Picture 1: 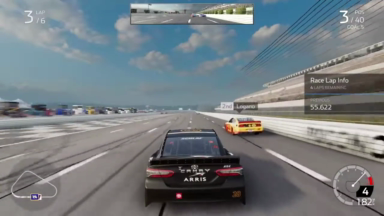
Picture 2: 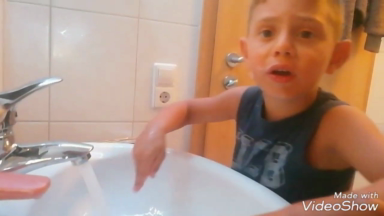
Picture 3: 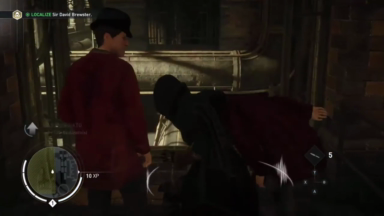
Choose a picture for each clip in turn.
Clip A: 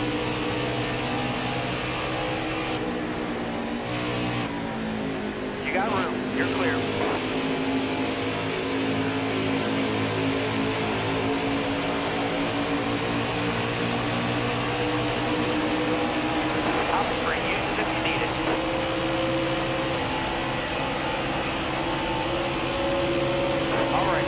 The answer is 1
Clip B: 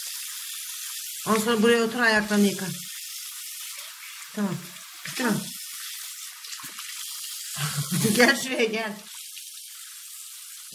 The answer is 2